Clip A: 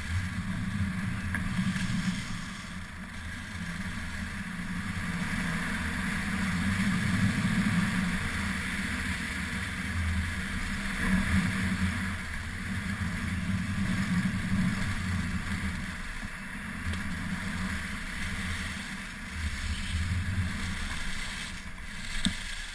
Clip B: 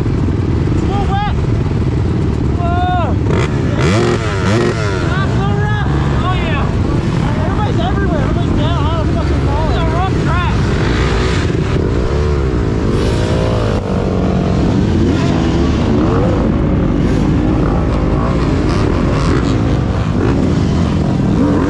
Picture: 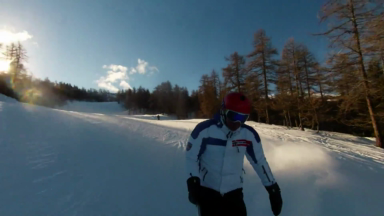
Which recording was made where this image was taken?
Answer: A